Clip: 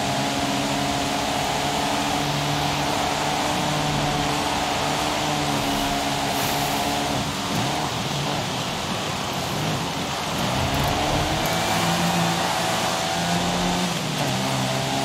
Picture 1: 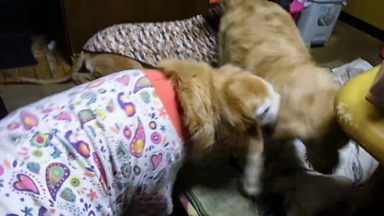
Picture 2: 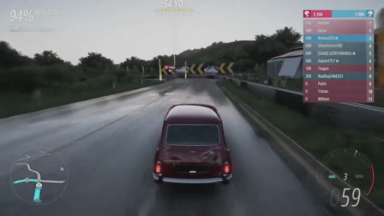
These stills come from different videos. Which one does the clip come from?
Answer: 2